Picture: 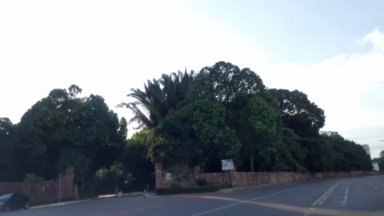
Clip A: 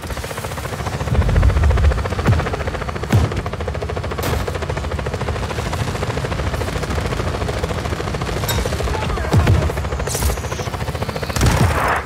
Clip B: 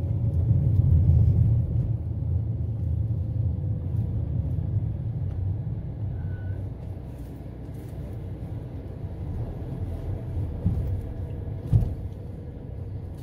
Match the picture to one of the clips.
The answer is B